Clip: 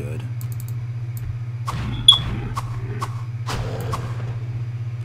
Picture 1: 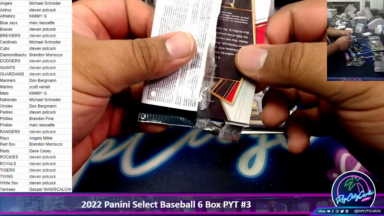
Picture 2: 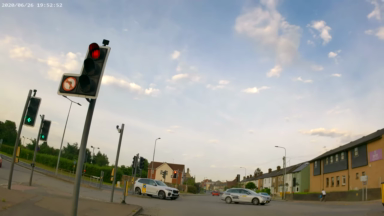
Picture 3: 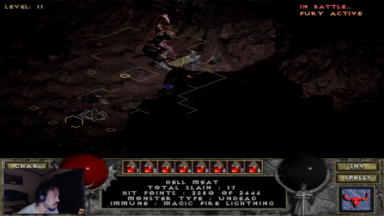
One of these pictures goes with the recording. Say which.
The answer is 3